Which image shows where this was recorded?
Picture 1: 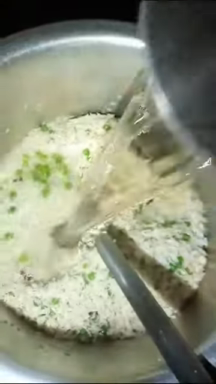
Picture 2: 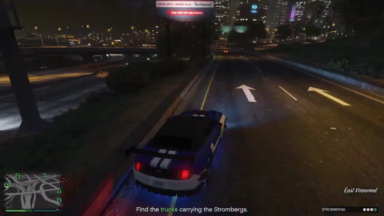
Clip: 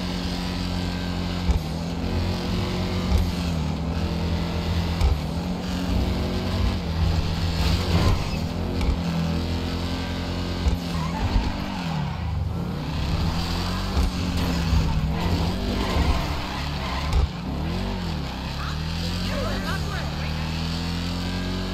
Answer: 2